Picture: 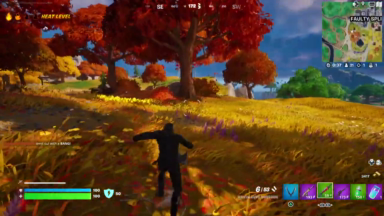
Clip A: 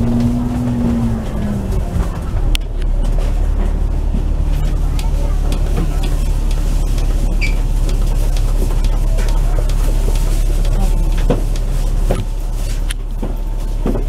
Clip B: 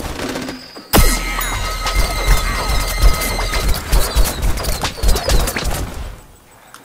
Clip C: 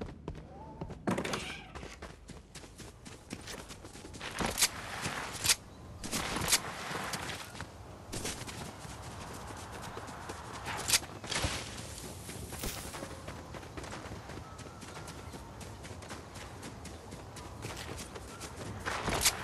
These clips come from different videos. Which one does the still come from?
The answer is C